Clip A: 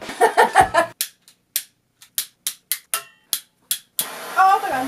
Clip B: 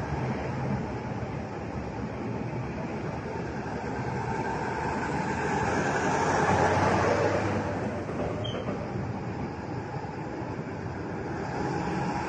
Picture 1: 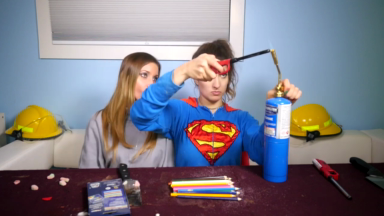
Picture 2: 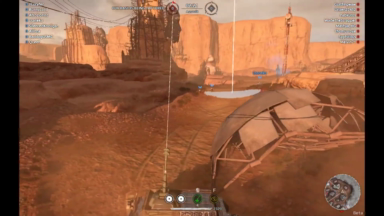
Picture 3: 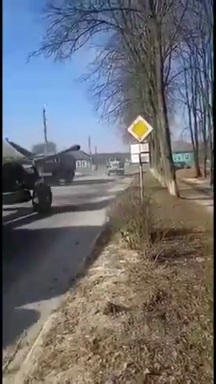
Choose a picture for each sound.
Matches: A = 1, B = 3